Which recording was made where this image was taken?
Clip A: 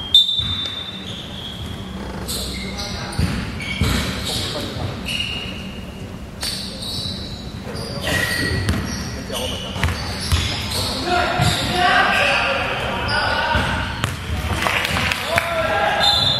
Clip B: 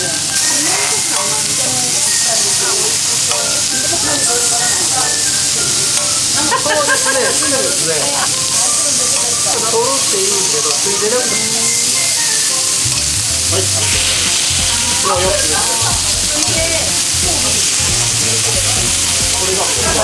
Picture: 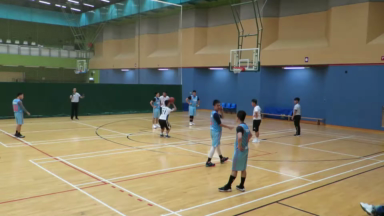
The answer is A